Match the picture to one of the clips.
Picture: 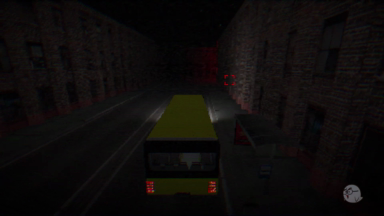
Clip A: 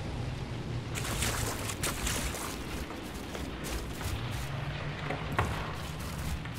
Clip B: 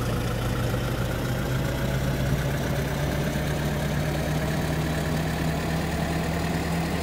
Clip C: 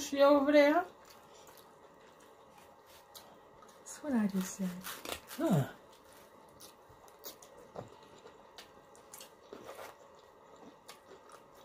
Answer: B